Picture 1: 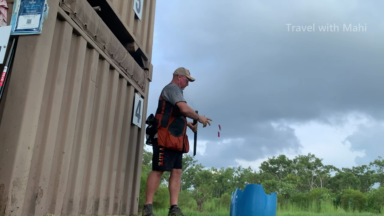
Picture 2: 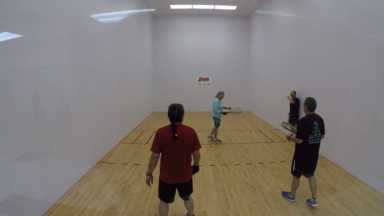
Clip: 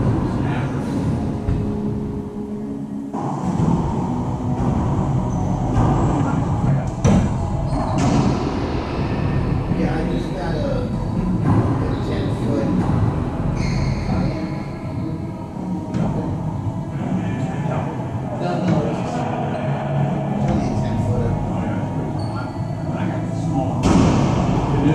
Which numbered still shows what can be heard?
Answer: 2